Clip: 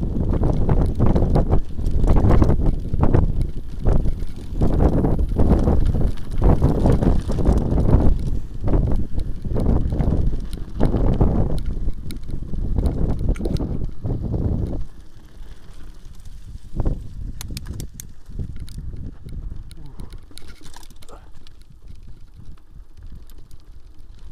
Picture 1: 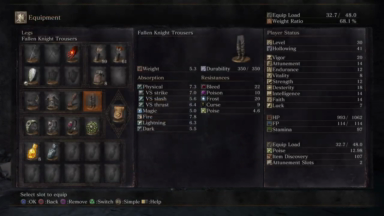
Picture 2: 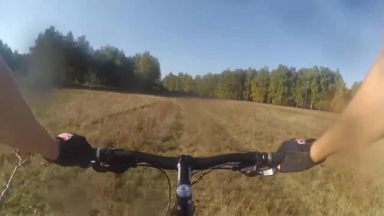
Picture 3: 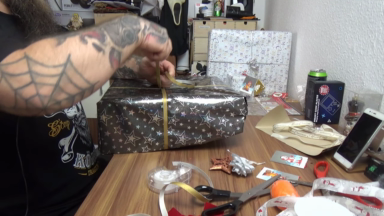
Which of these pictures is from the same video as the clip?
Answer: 2